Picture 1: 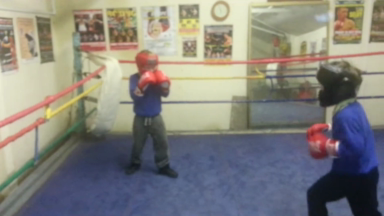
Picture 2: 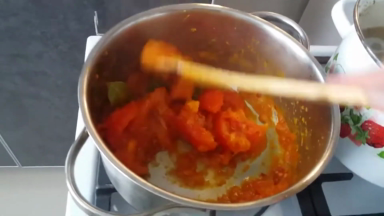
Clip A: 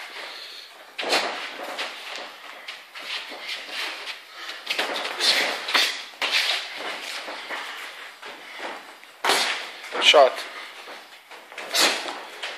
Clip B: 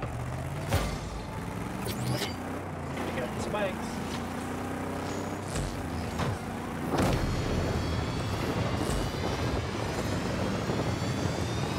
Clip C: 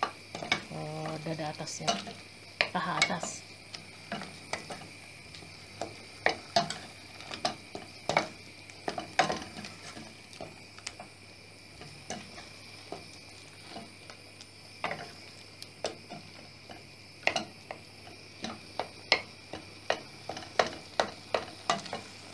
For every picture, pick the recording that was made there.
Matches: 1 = A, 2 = C